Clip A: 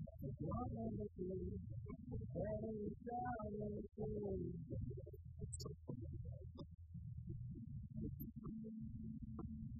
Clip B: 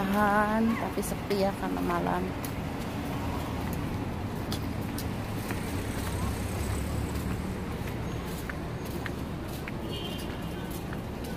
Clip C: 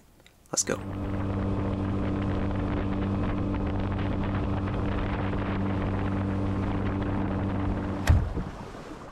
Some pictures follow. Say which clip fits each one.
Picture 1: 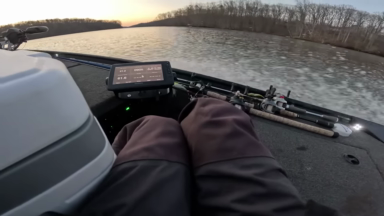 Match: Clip C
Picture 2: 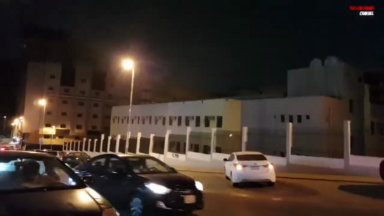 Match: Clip B